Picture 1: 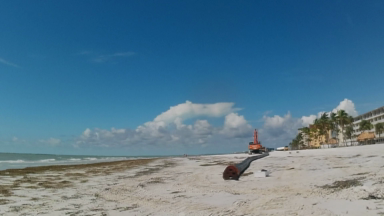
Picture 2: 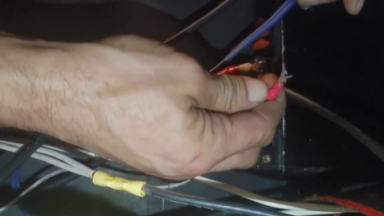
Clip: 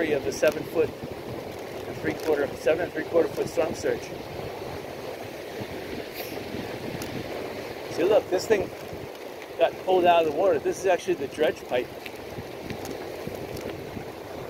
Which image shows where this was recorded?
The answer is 1